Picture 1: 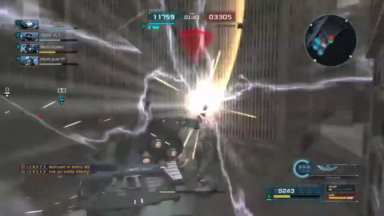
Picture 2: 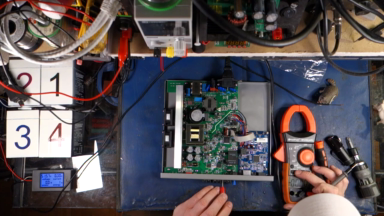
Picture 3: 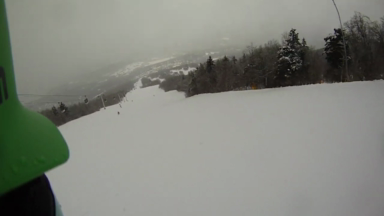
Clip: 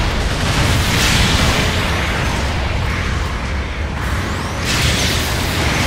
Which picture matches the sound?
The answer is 1